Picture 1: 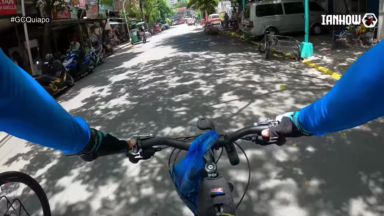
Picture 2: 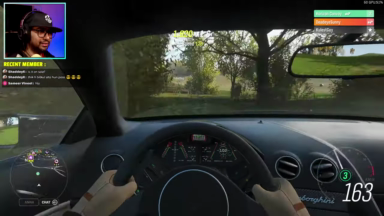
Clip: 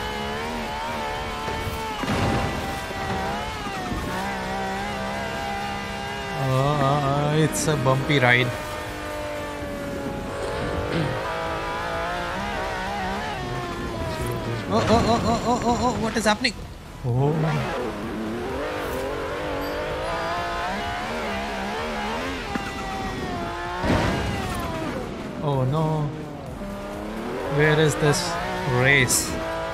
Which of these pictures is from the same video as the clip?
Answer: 2